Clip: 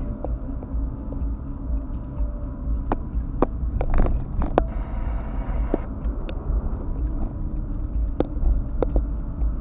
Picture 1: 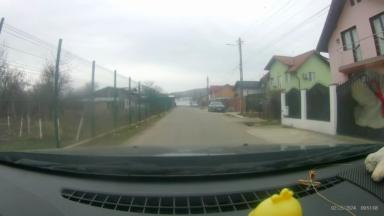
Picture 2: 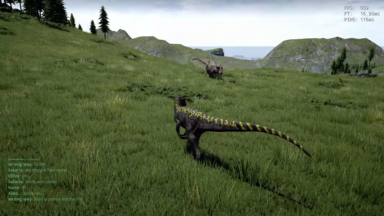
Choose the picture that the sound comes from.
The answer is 1